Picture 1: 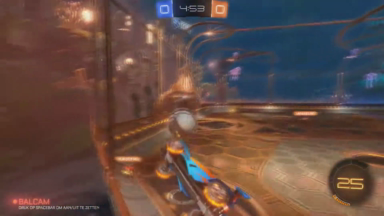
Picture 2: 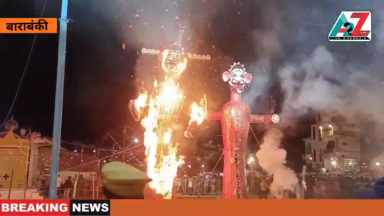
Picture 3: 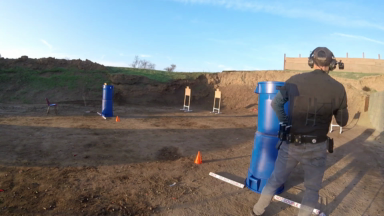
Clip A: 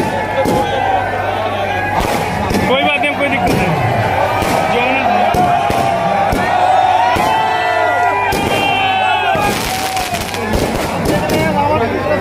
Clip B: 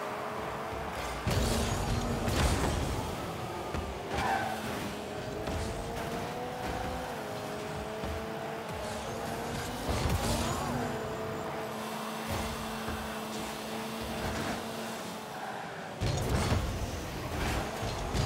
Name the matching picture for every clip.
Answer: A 2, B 1